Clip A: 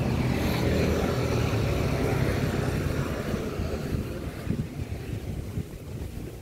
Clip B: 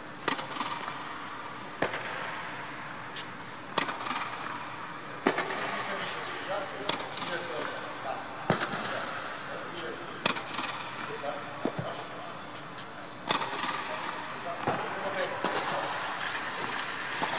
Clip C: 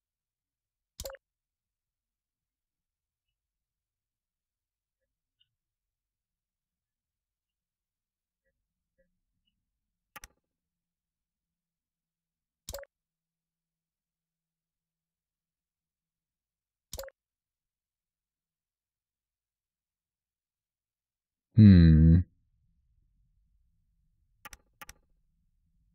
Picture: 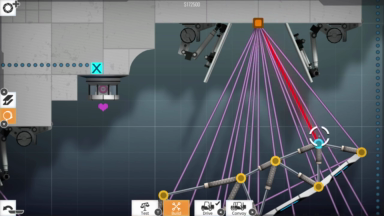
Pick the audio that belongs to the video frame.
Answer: C